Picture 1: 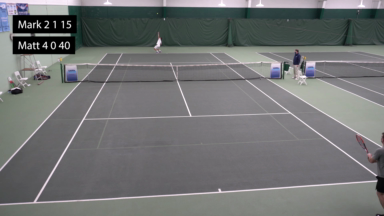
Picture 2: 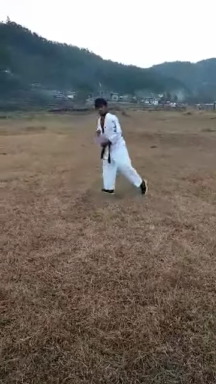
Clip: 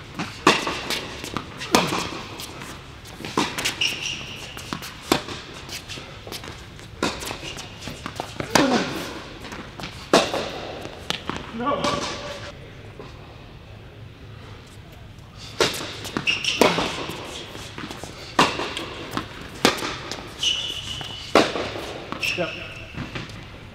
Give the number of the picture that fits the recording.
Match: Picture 1